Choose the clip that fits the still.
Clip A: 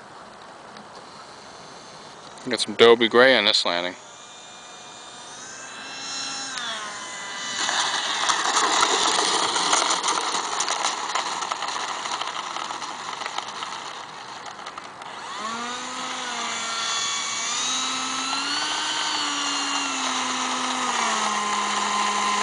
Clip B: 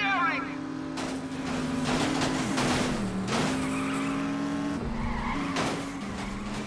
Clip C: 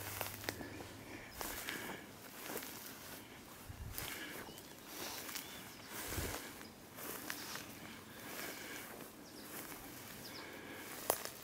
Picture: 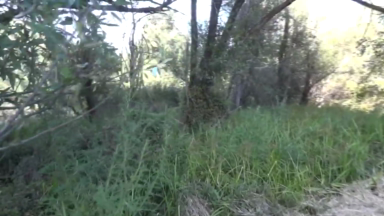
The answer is C